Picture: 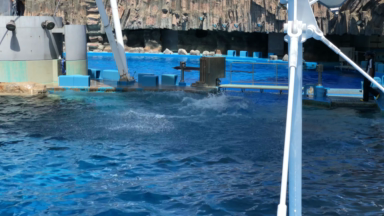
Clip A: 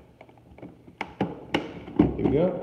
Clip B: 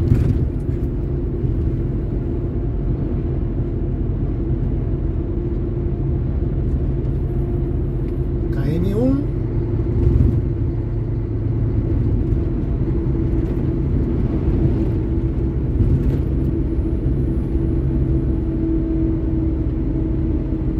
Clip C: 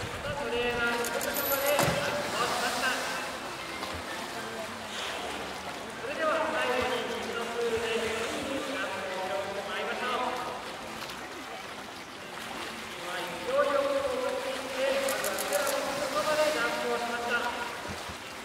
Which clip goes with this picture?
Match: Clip C